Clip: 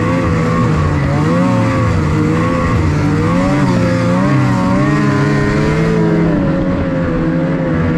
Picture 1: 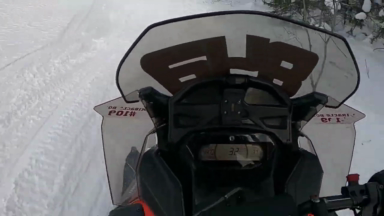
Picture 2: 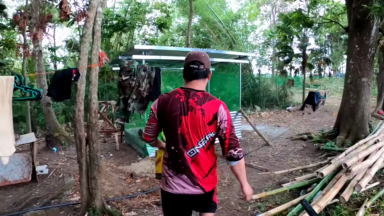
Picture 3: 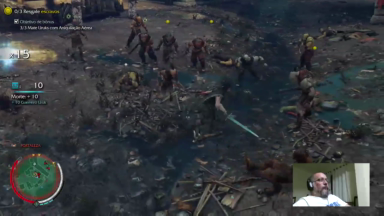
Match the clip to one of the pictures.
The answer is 1